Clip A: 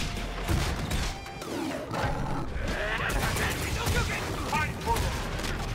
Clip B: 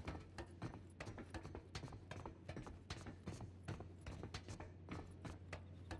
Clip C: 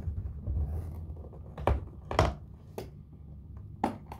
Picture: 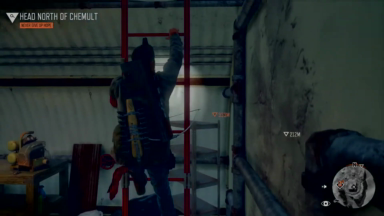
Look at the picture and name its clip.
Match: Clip B